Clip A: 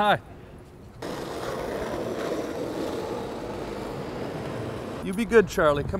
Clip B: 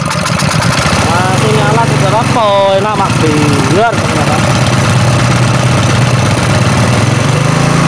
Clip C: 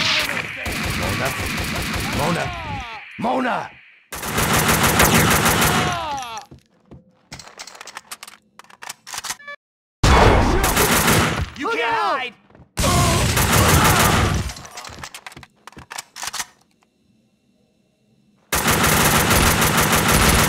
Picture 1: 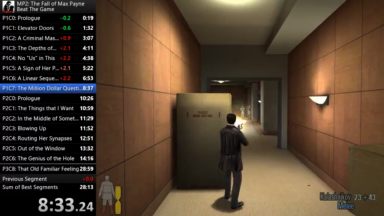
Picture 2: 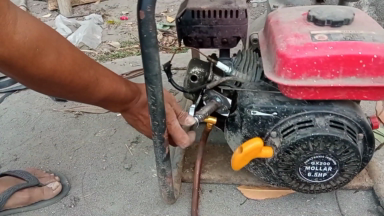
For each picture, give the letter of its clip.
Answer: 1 C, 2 B